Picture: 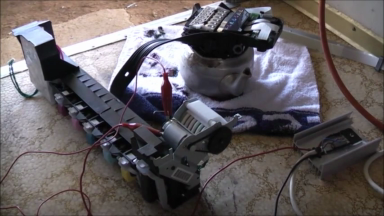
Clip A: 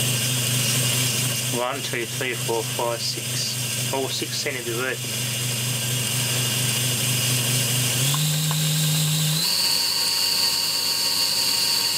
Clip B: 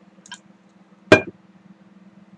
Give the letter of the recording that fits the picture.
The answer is A